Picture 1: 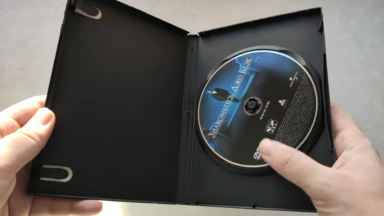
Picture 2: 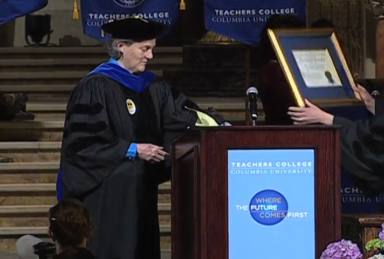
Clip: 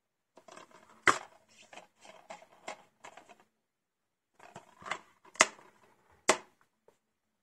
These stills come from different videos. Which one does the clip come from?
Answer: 1